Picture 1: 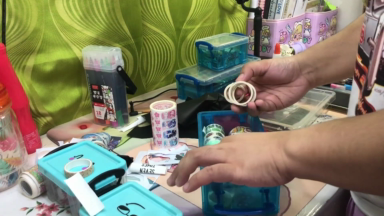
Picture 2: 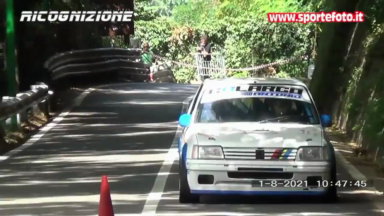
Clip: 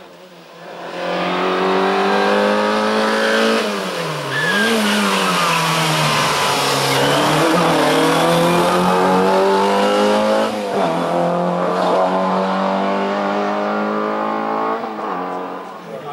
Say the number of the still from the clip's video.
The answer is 2